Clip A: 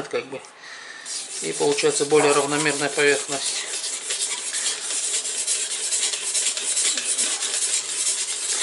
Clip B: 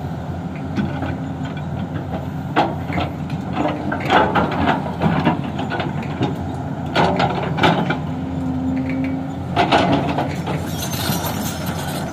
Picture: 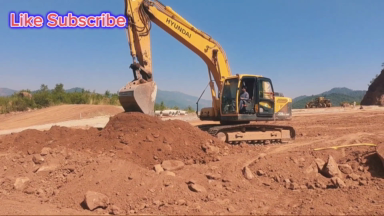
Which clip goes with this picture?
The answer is B